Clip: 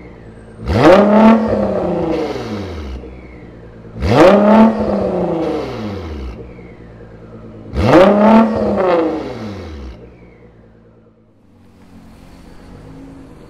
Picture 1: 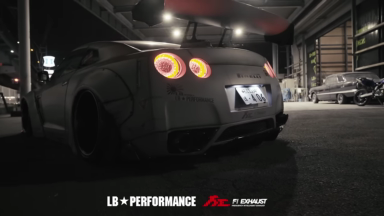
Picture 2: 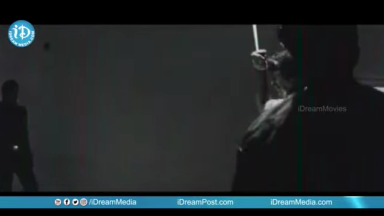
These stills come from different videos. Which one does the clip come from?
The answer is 1